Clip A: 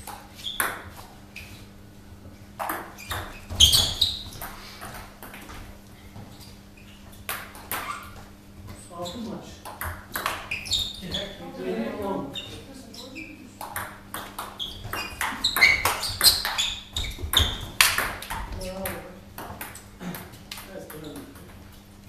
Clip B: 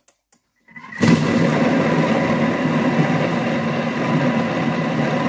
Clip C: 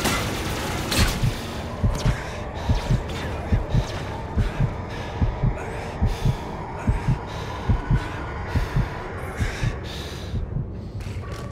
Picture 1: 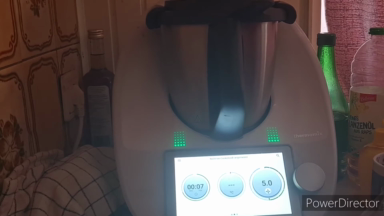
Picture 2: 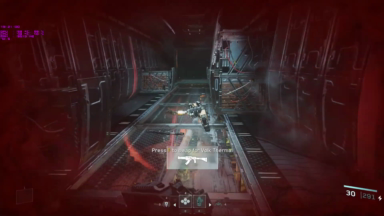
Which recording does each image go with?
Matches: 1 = B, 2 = C